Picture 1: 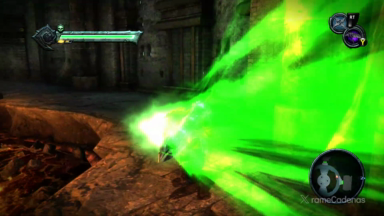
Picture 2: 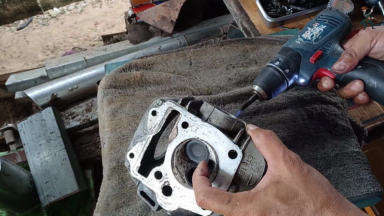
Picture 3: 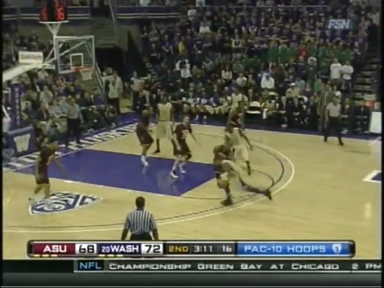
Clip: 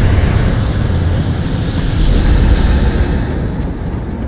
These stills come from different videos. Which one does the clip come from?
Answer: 1